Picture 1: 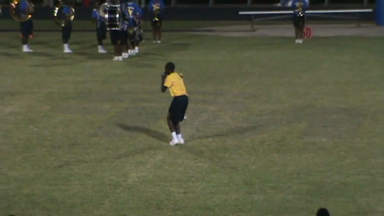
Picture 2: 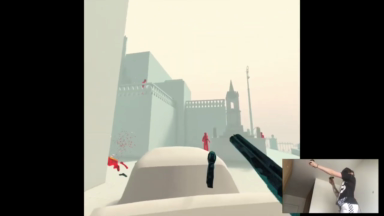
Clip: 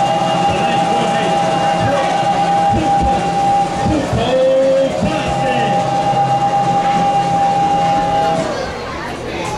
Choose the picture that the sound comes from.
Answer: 1